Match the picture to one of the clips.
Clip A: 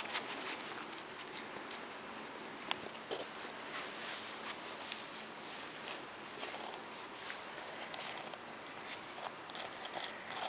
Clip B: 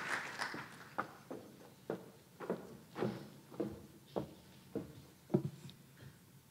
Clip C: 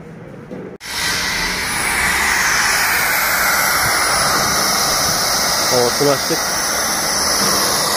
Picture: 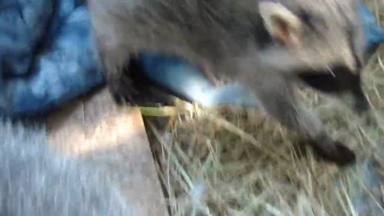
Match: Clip A